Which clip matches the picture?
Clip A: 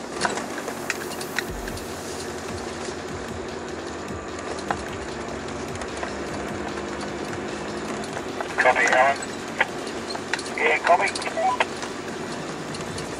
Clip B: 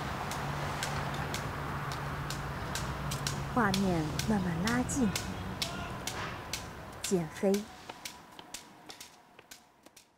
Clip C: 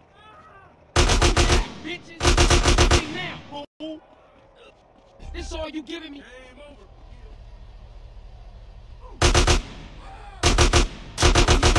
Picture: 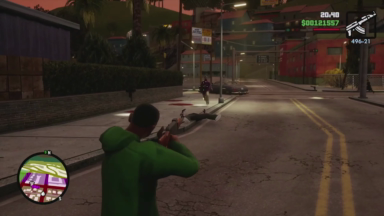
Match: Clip C